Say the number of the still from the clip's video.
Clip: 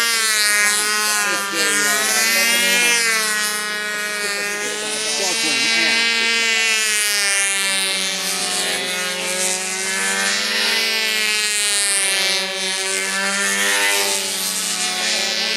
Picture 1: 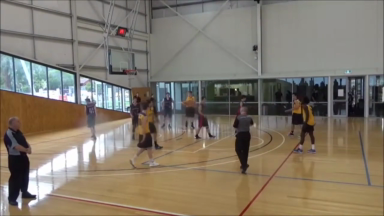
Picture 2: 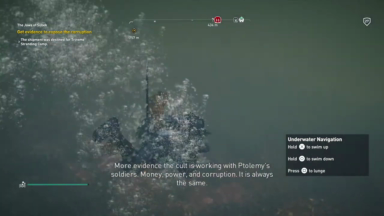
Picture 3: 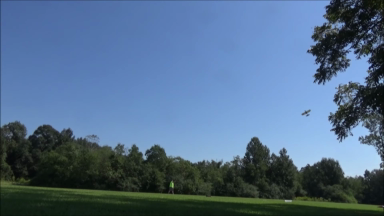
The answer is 3